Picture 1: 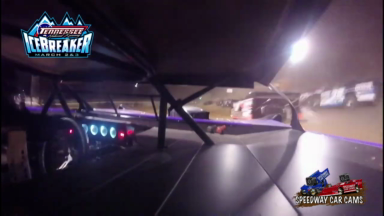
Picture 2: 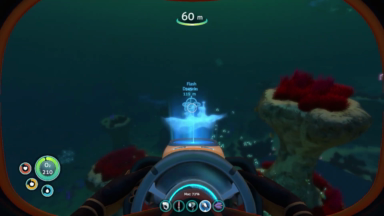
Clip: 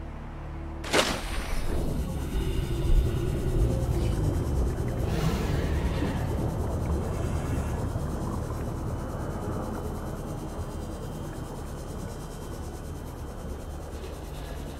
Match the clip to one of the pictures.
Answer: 2